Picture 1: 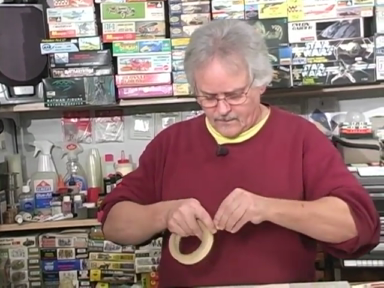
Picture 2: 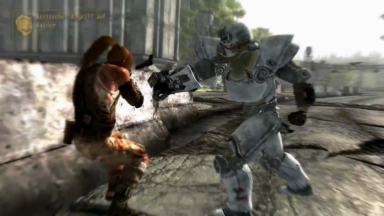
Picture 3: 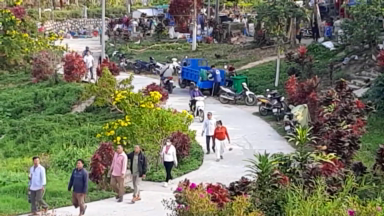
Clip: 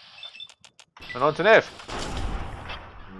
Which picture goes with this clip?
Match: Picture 2